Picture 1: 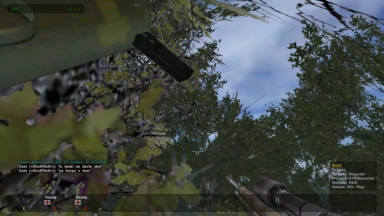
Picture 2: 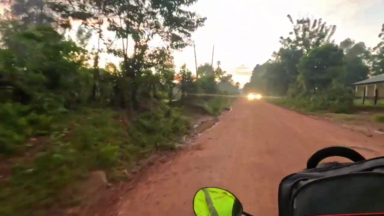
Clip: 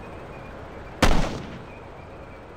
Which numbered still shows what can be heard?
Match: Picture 1